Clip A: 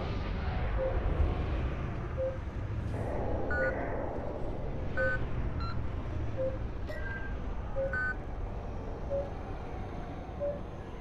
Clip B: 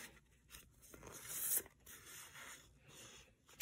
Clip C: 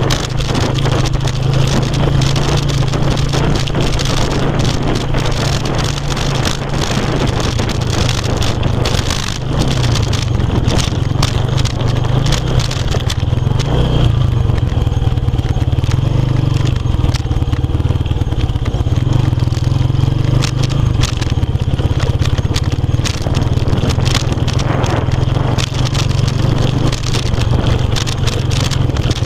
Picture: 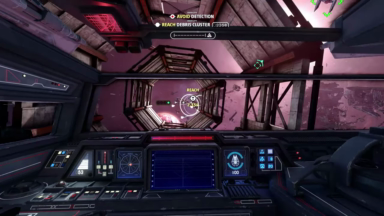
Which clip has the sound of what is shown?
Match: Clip A